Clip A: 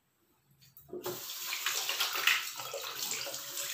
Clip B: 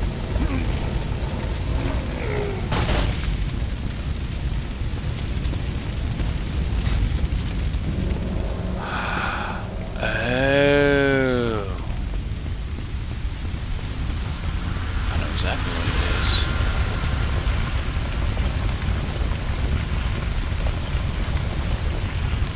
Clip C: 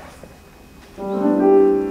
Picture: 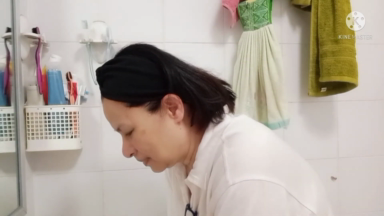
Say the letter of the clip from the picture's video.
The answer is A